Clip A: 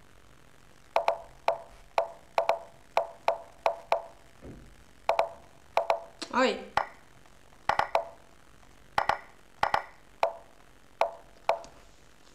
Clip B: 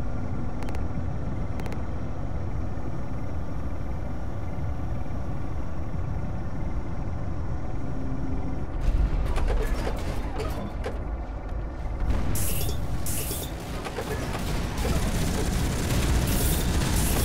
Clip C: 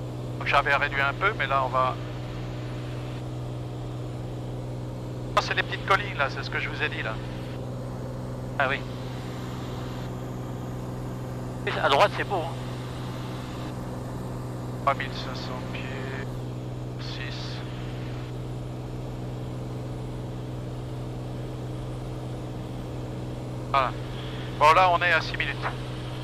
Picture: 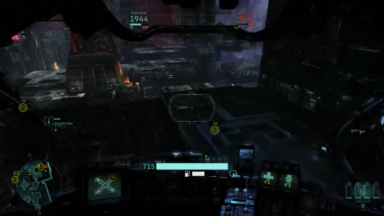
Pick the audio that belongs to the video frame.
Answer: B